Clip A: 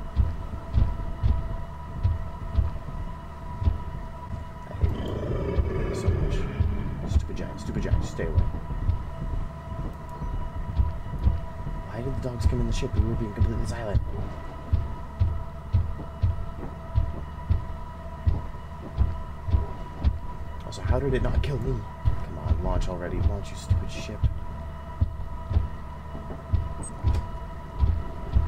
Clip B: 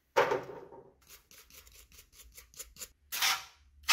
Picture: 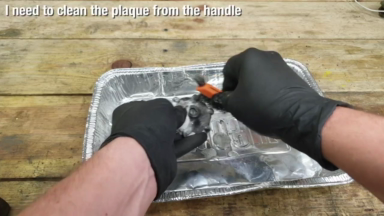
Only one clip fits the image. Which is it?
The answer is B